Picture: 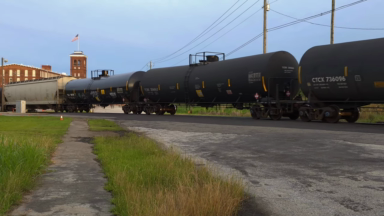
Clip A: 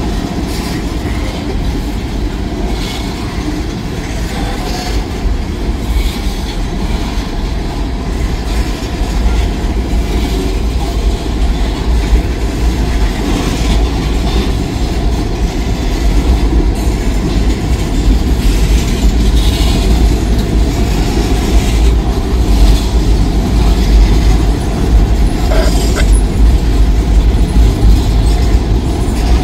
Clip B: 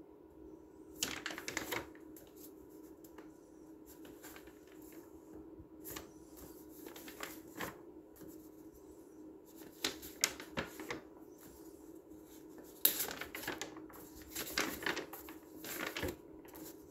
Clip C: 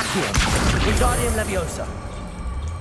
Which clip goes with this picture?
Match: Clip A